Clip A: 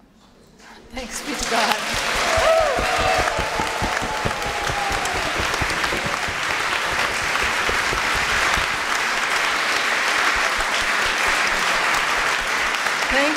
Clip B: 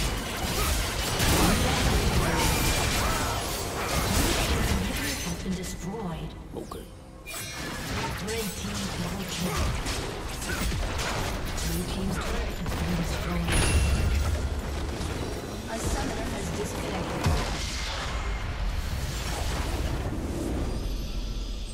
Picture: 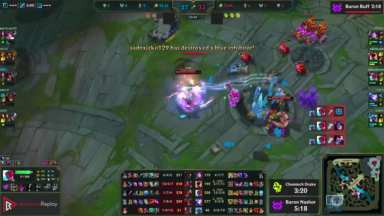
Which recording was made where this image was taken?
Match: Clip B